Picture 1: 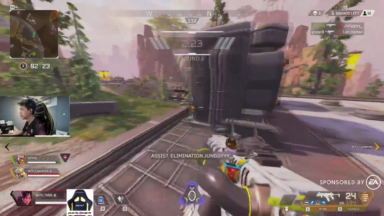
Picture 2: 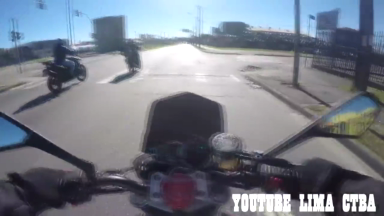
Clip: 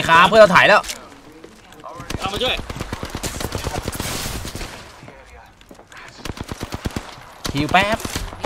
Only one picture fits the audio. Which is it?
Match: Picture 1